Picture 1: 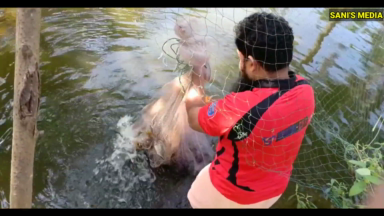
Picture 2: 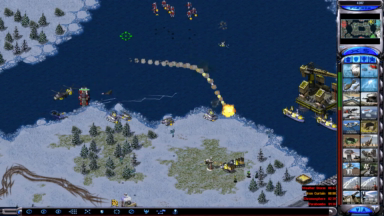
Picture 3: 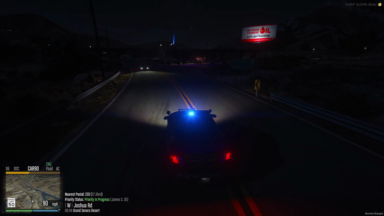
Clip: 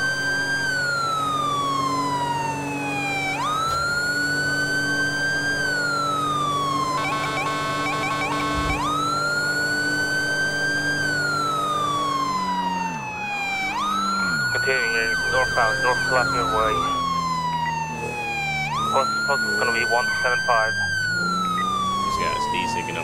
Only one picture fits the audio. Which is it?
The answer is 3